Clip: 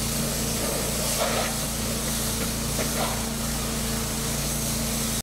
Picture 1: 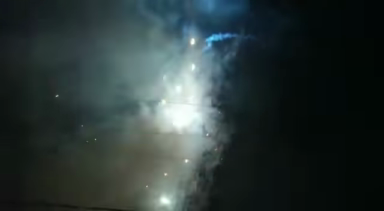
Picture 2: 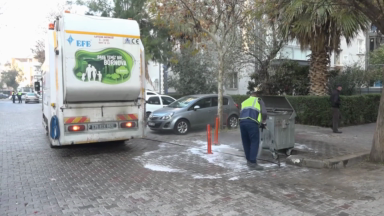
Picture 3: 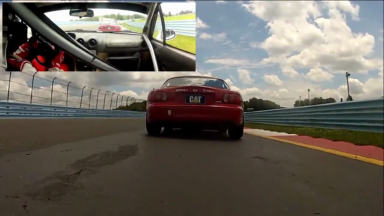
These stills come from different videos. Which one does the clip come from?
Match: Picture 2